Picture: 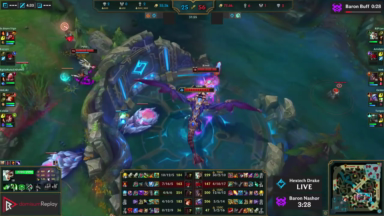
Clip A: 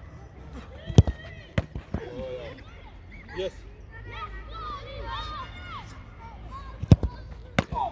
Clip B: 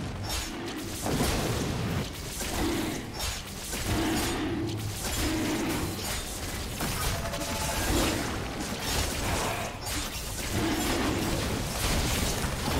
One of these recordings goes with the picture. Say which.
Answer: B